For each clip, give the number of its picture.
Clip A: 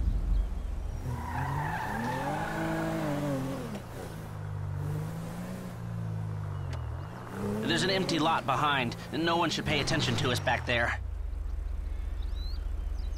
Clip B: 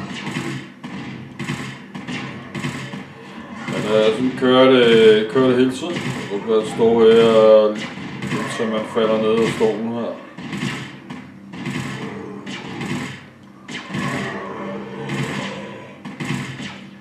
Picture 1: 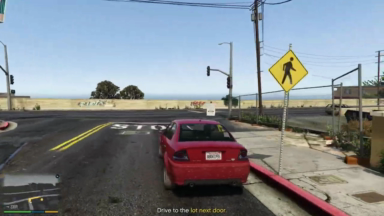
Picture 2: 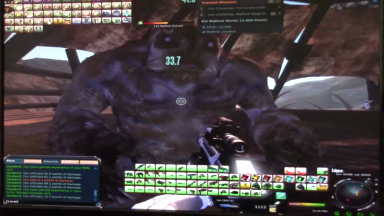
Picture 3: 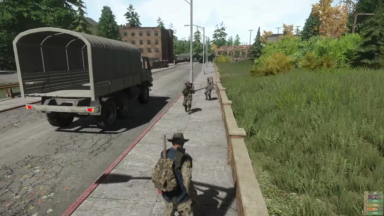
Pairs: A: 1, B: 2